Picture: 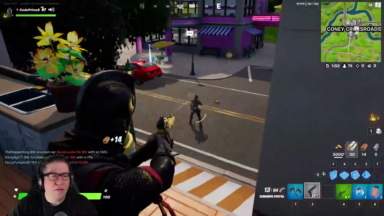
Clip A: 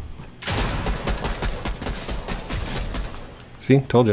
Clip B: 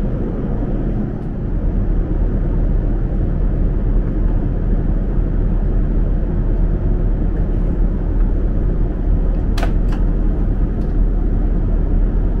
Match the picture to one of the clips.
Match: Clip A